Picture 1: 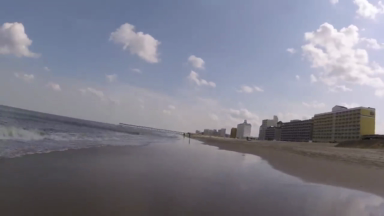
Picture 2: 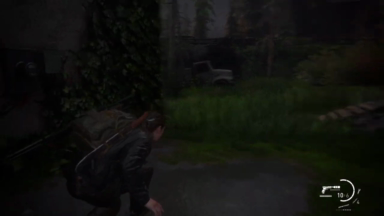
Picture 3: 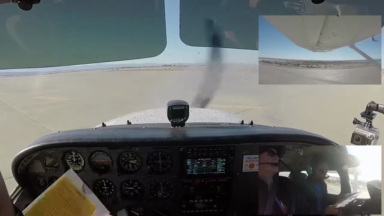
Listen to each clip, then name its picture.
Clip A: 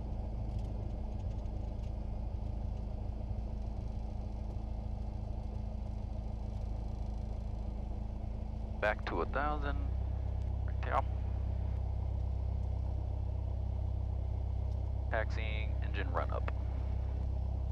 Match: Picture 3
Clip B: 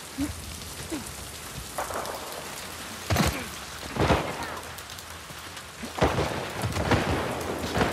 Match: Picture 2